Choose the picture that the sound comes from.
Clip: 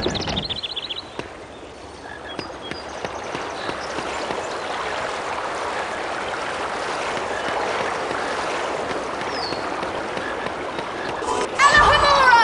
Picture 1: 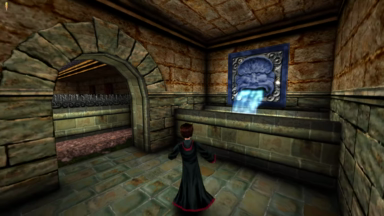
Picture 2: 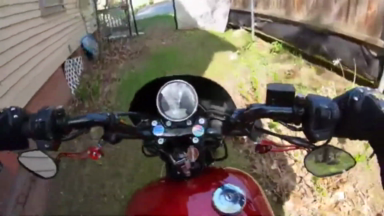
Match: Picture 1